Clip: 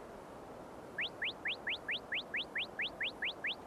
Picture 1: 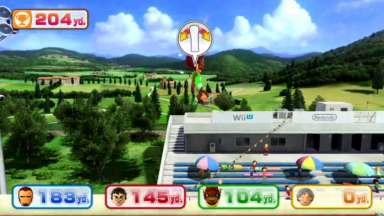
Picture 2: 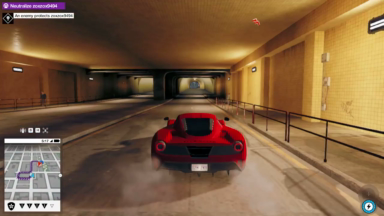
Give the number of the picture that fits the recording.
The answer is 1